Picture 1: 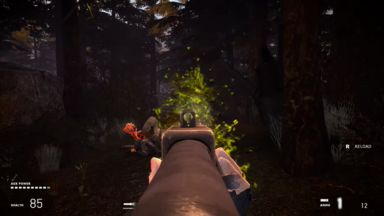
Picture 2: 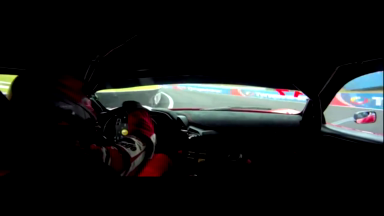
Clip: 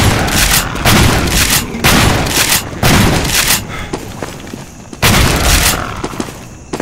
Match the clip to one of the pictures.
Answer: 1